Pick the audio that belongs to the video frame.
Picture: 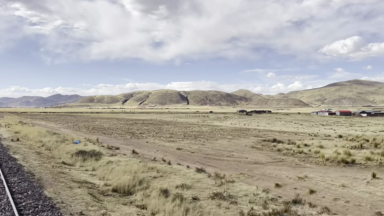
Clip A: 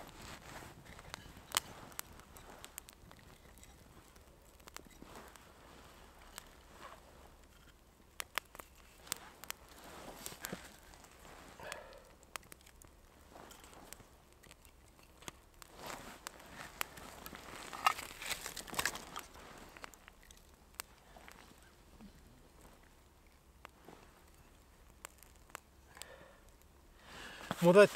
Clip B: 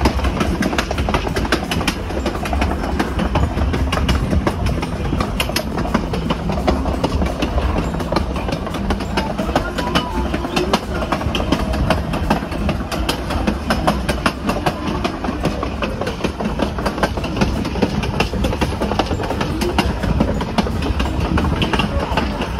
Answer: B